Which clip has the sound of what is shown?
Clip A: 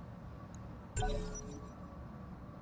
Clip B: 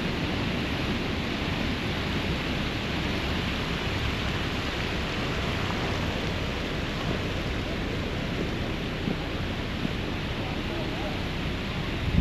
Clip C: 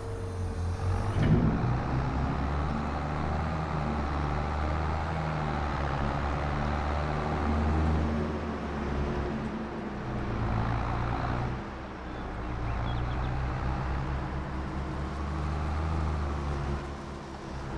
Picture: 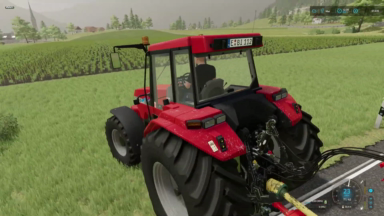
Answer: C